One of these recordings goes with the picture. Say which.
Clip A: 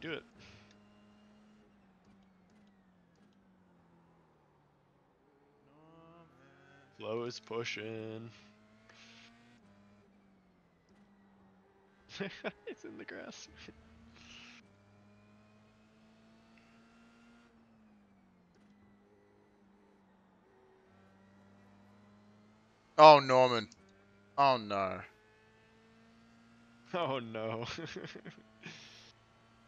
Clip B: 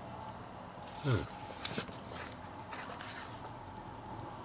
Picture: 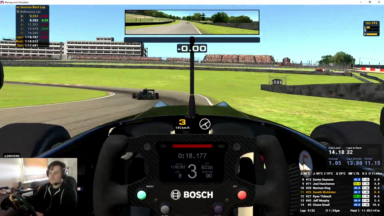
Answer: A